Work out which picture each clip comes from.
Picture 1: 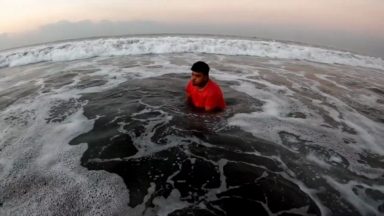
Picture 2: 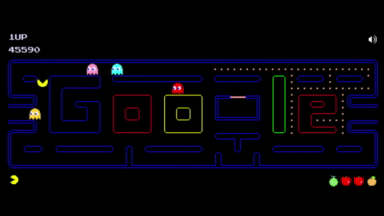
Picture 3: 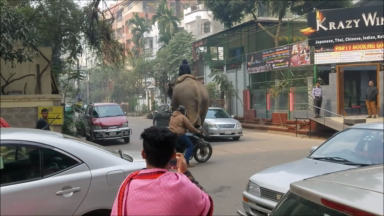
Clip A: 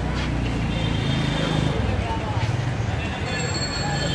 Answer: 3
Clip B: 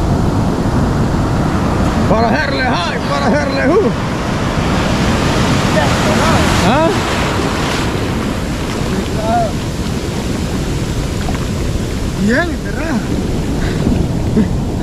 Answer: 1